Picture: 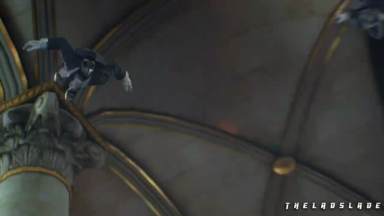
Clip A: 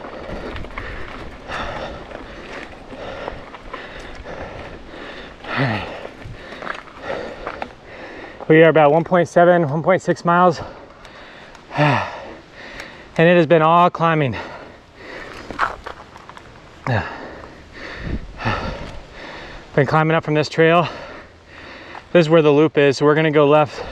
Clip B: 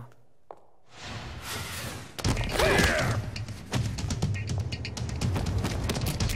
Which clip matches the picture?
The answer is B